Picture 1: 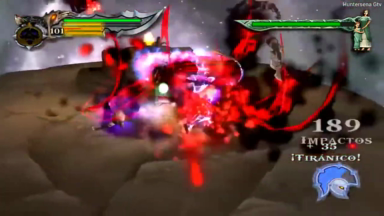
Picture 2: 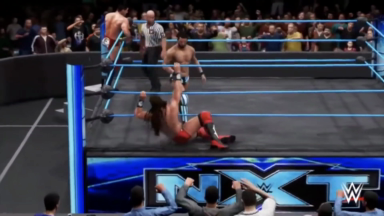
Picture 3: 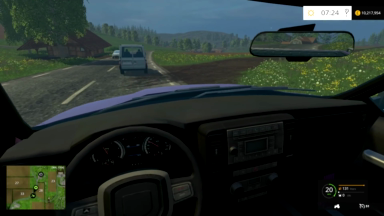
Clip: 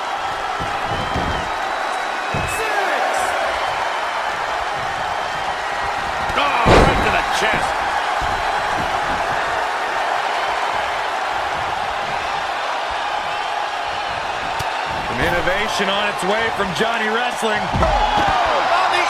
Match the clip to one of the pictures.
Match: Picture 2